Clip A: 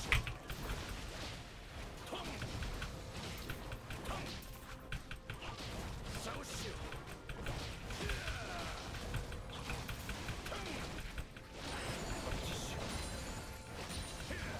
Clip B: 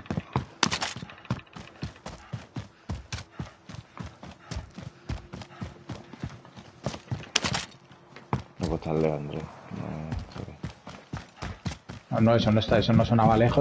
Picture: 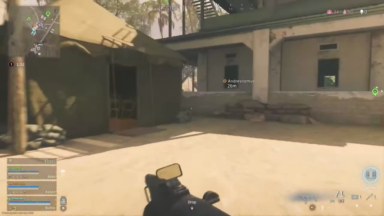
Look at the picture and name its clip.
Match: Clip B